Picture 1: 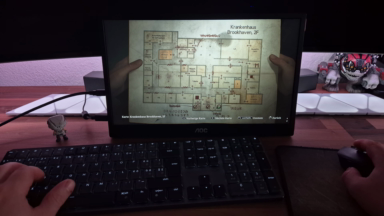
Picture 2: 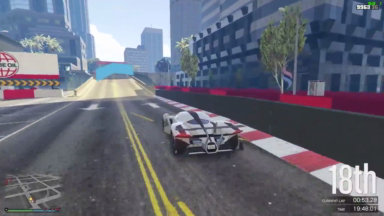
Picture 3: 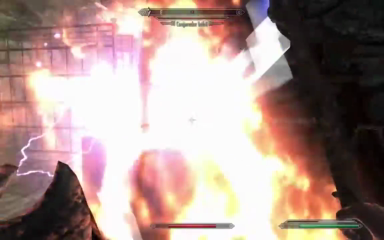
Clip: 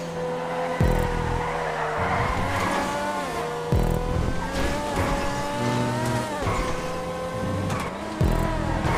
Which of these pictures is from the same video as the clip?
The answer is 2